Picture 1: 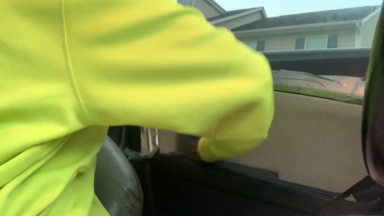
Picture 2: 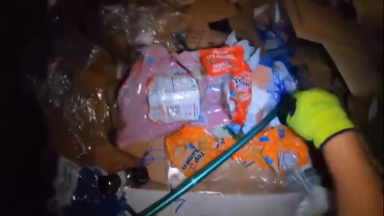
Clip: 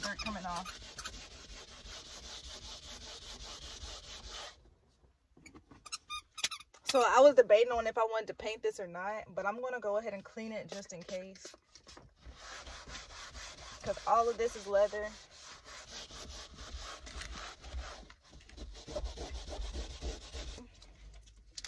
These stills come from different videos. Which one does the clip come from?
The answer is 1